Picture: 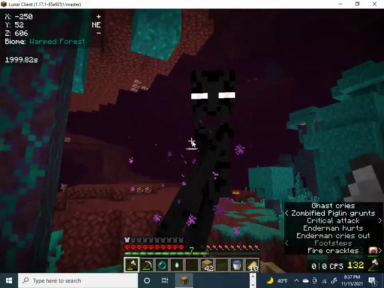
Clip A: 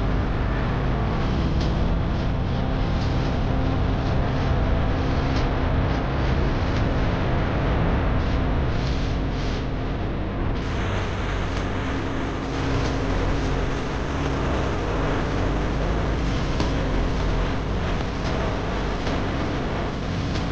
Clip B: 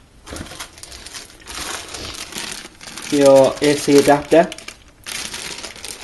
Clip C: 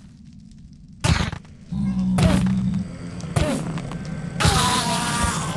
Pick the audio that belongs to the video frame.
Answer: C